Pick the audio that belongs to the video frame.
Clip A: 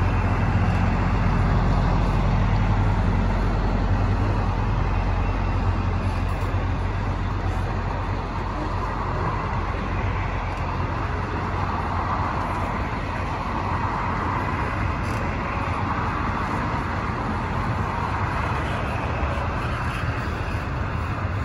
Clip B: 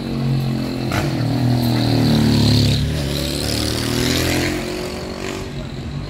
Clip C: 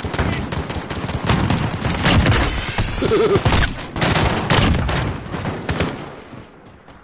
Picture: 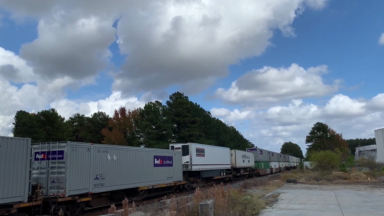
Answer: A